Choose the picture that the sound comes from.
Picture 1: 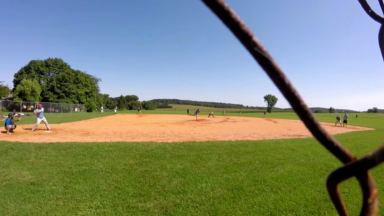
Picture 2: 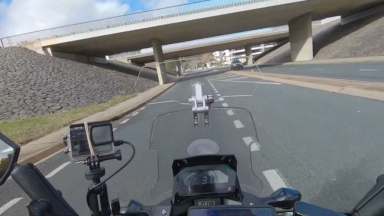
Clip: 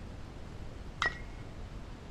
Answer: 1